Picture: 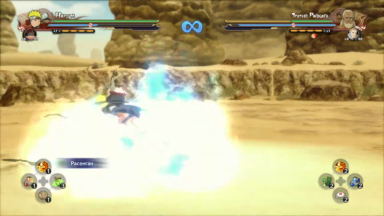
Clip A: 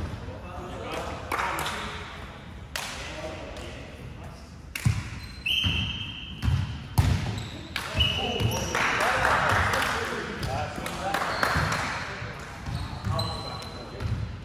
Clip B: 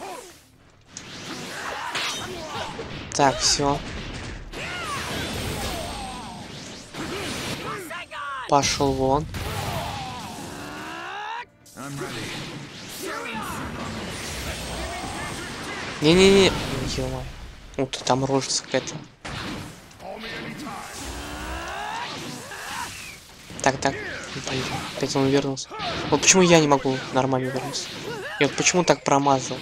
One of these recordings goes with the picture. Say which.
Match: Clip B